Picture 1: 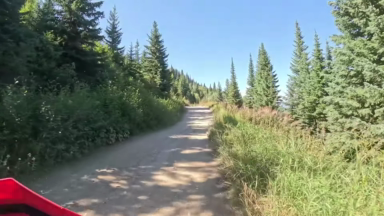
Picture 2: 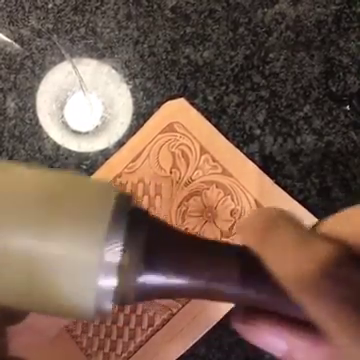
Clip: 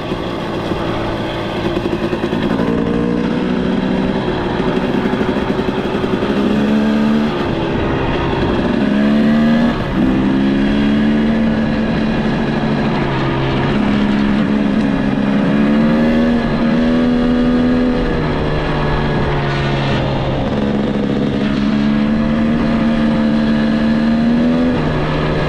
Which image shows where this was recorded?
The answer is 1